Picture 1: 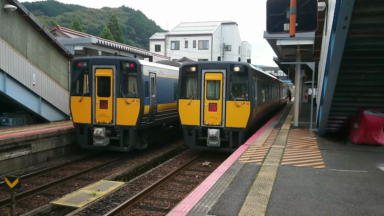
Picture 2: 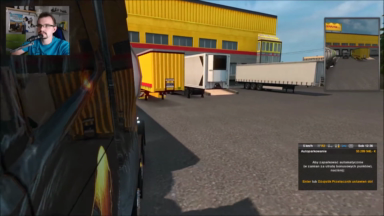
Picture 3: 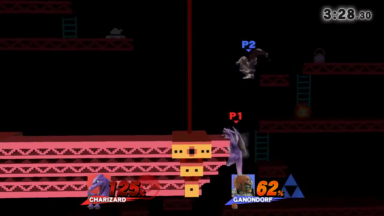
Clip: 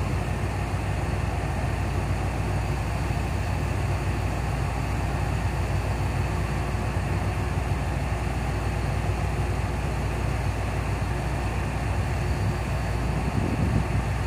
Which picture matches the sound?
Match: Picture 1